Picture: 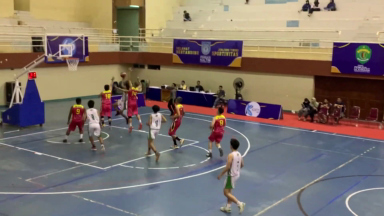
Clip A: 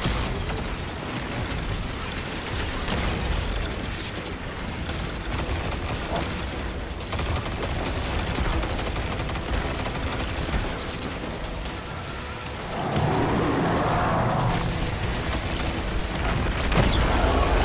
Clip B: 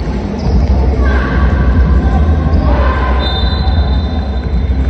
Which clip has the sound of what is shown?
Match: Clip B